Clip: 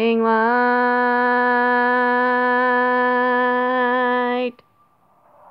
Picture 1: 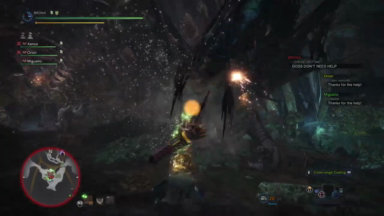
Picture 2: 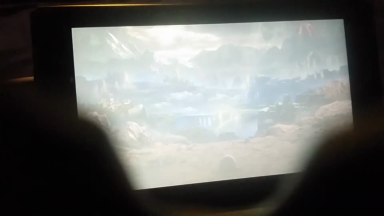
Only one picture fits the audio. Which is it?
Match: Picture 2